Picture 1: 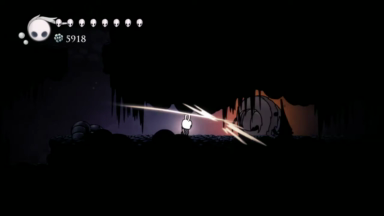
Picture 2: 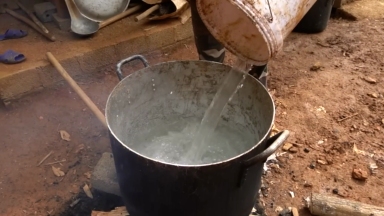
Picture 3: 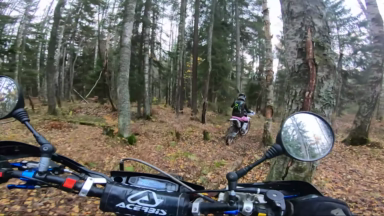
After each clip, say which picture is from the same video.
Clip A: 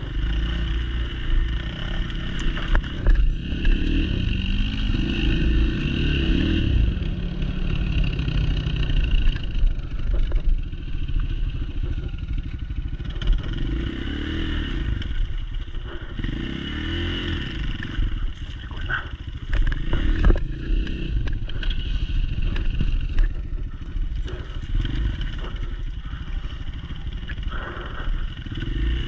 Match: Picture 3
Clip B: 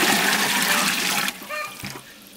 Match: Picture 2